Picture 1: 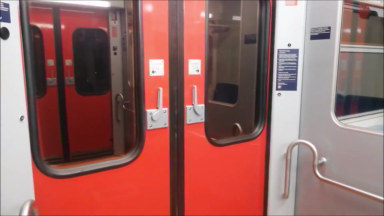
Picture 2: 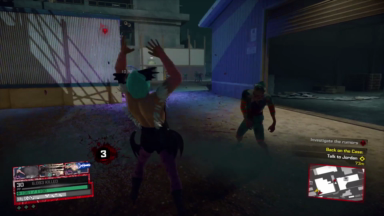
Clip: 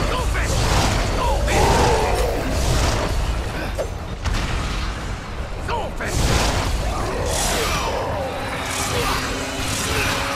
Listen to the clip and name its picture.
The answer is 2